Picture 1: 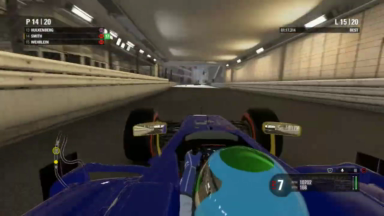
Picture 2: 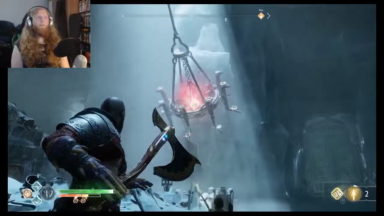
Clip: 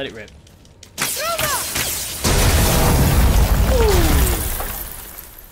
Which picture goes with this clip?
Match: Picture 2